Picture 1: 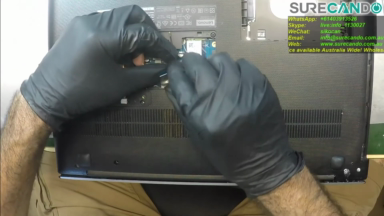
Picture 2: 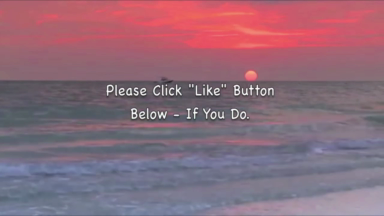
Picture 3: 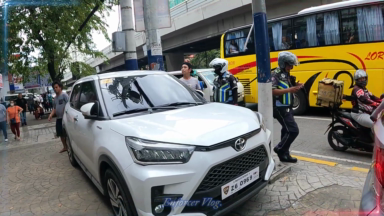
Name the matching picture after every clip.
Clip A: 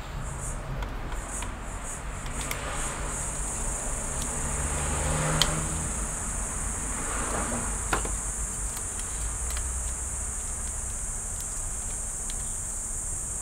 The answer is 1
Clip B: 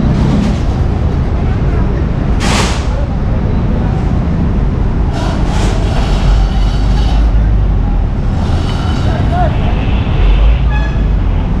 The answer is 3